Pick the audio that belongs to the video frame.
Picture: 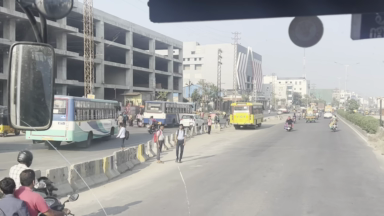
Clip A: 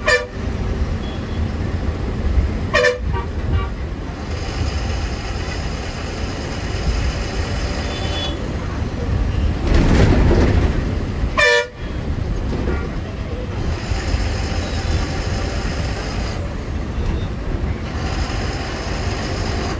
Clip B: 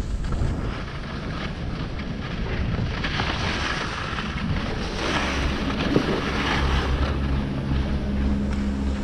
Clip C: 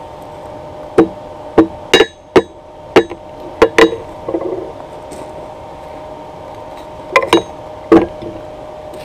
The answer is A